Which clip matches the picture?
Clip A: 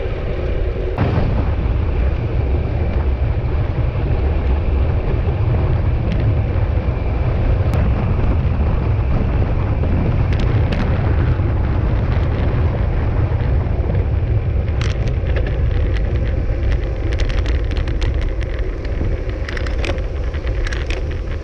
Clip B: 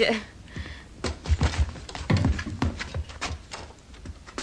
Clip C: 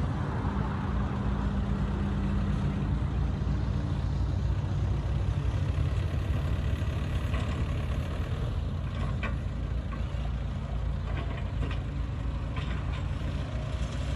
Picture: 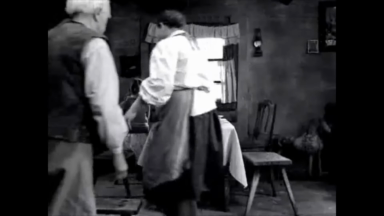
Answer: B